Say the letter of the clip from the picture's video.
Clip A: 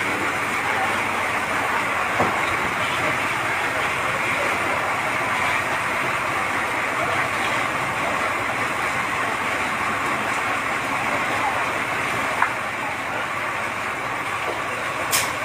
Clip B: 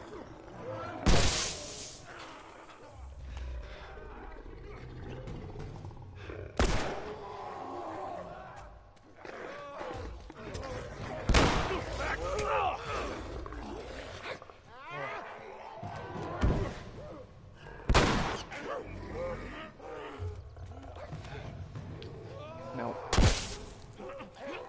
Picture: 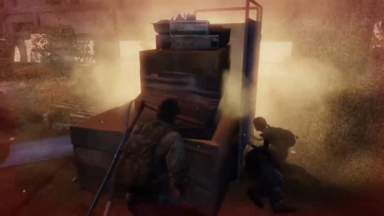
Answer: B